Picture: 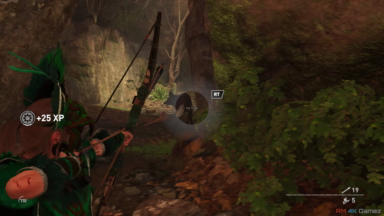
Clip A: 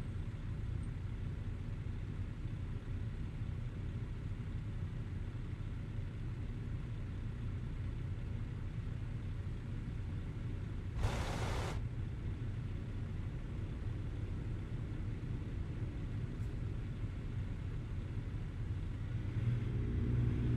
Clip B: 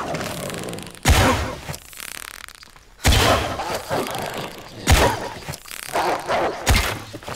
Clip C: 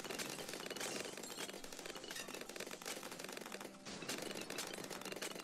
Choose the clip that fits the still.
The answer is B